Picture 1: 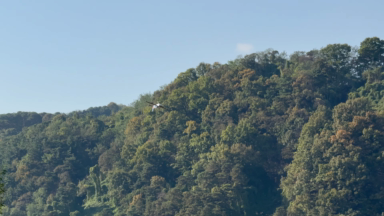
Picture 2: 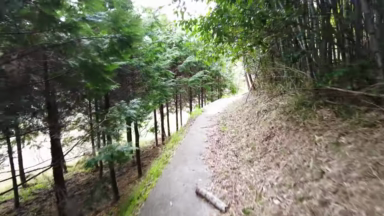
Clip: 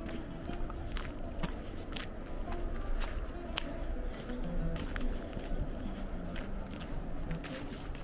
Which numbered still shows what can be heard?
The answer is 2